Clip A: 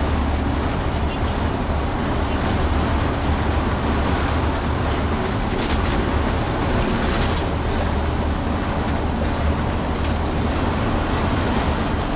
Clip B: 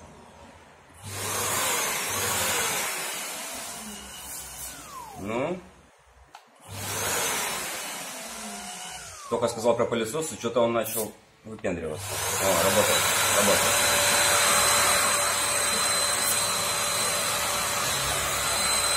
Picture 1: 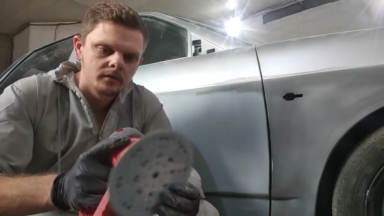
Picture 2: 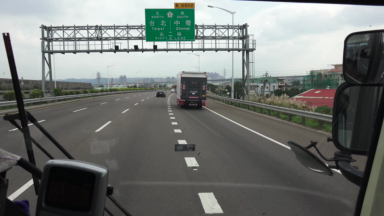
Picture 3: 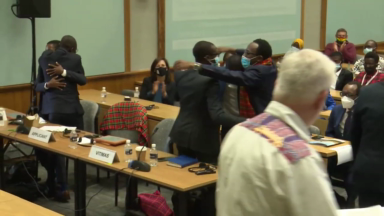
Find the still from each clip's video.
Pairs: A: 2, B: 1